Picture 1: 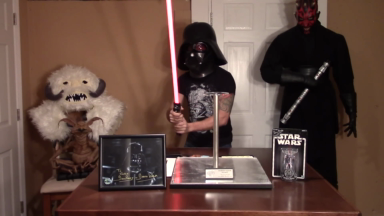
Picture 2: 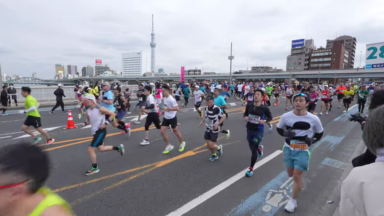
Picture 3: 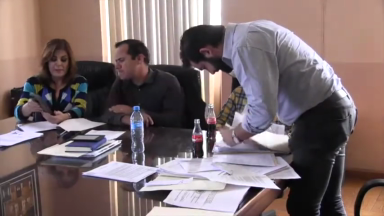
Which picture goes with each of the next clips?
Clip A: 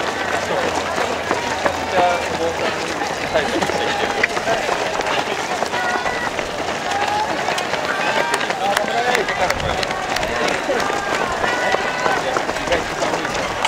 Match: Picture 2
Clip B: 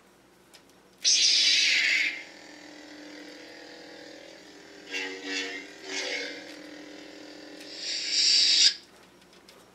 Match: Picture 1